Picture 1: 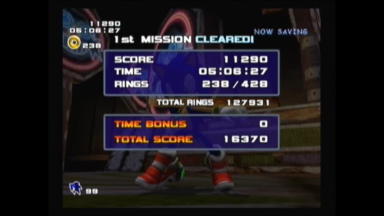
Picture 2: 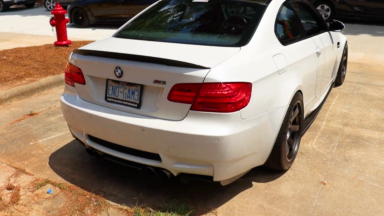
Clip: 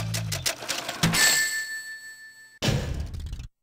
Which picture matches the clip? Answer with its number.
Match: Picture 1